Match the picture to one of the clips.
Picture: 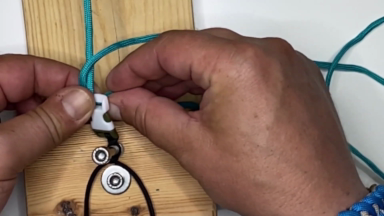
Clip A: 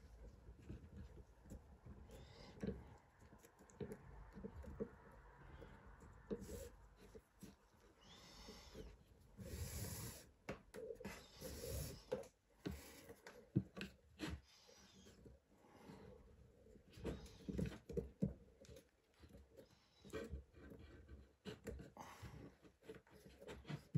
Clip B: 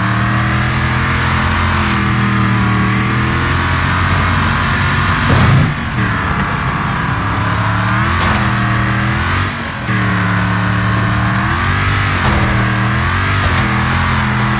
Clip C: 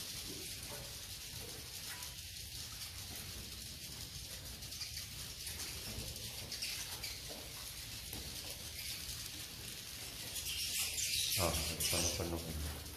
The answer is A